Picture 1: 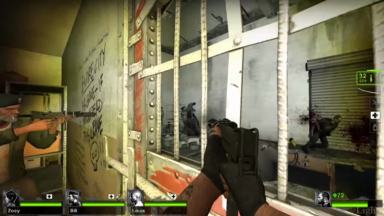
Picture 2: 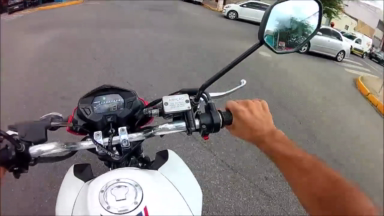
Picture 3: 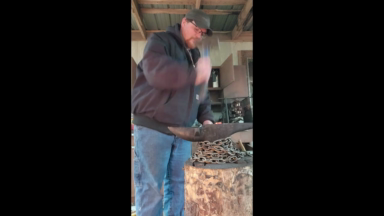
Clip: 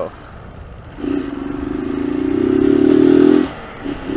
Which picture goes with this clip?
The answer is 2